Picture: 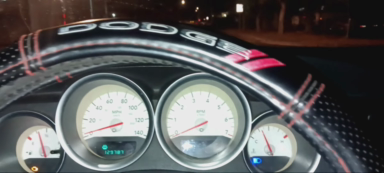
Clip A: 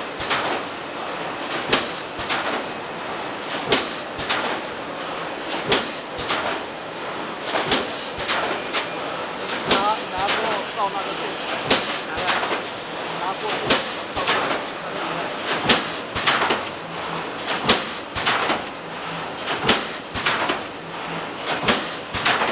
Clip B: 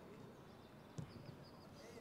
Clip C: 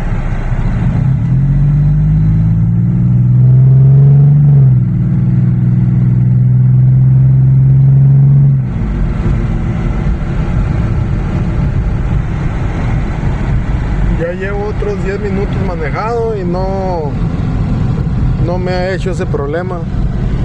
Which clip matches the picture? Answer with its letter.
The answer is C